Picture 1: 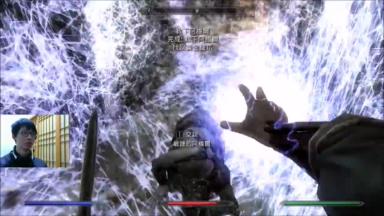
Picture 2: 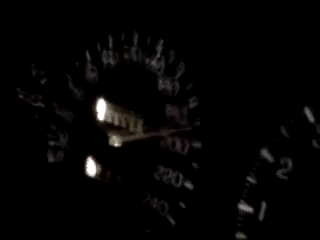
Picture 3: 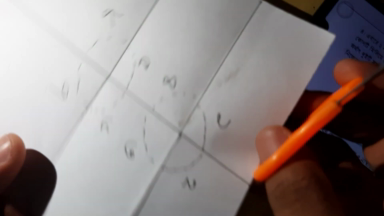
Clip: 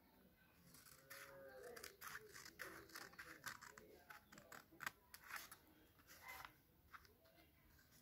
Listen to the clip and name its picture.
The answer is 3